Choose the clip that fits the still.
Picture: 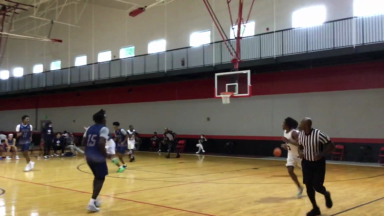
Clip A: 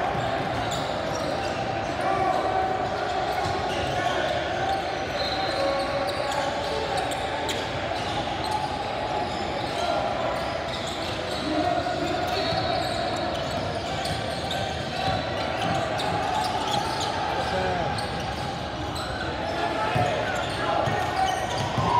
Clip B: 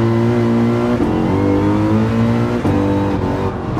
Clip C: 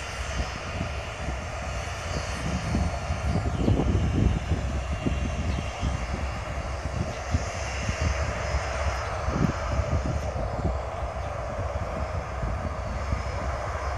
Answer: A